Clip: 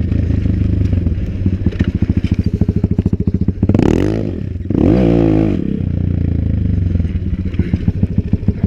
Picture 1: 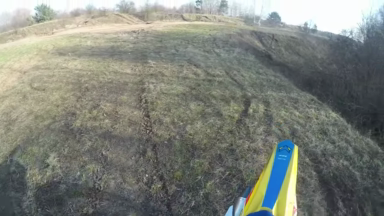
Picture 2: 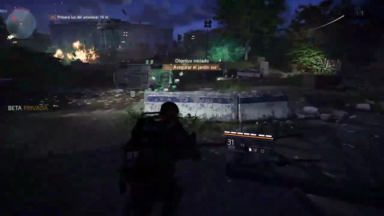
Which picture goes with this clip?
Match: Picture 1